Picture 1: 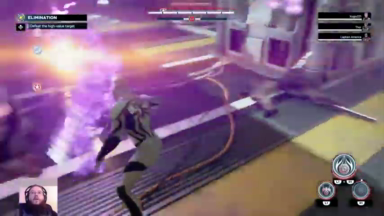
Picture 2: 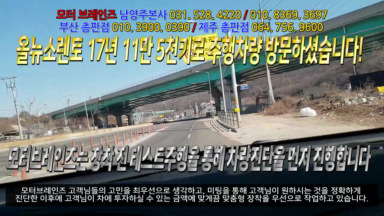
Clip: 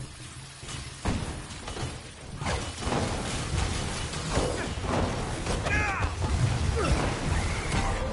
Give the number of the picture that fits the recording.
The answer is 1